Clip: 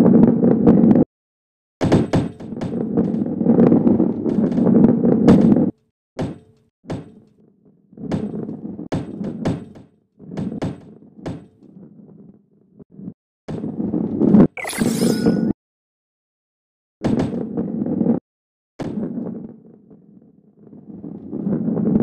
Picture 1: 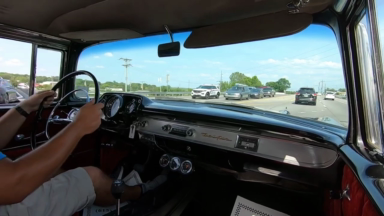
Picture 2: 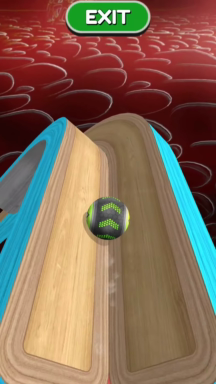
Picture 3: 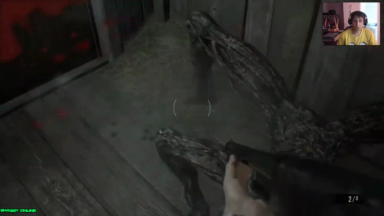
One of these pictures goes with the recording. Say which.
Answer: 2